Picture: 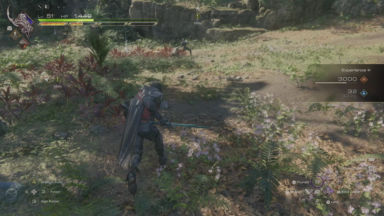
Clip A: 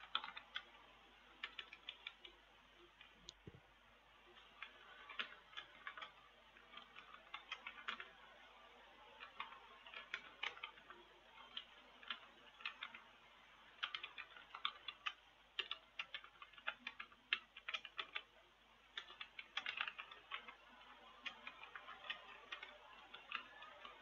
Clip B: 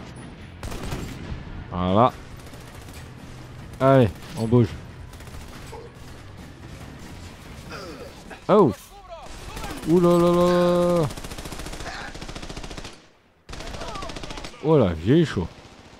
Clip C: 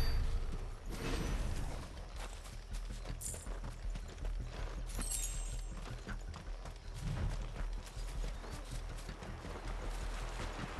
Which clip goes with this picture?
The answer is C